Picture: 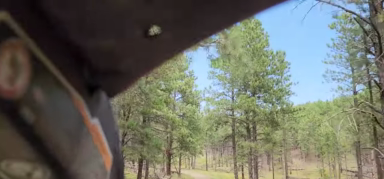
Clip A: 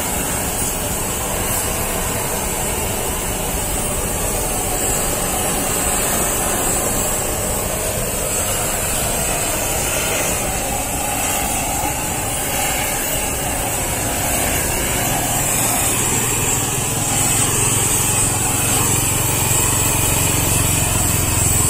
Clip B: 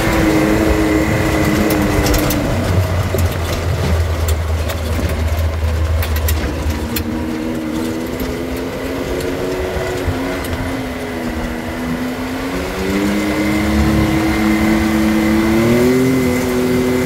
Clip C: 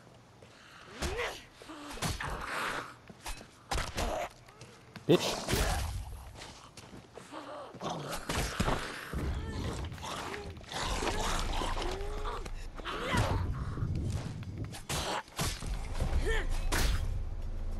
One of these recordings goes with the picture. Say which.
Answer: B